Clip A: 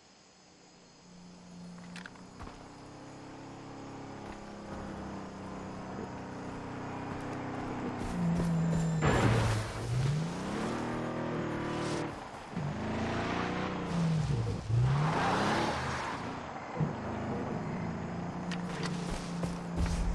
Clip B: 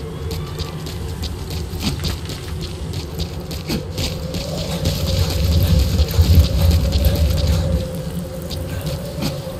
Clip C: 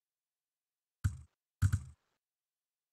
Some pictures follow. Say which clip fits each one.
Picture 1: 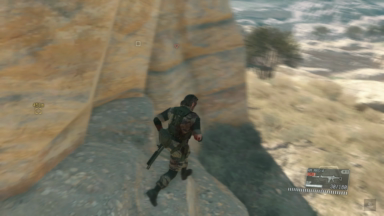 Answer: B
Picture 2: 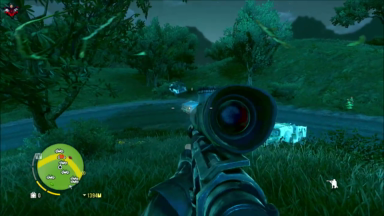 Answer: A